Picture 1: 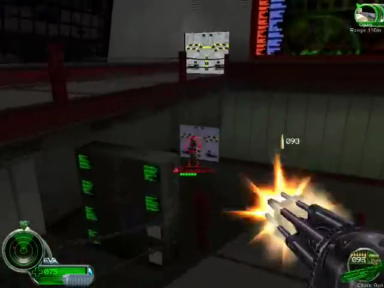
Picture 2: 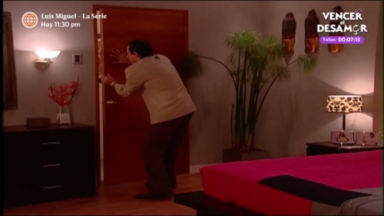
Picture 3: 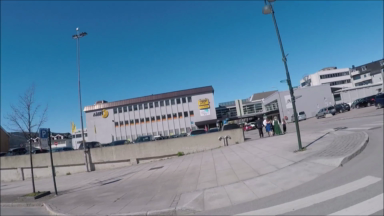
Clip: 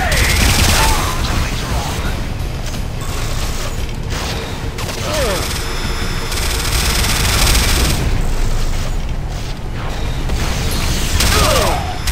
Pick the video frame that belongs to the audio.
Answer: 1